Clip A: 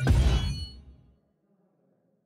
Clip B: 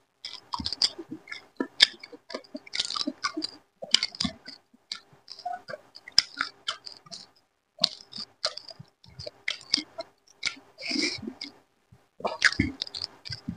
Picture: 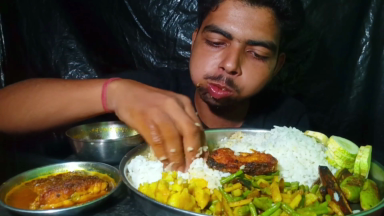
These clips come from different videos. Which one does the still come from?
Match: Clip B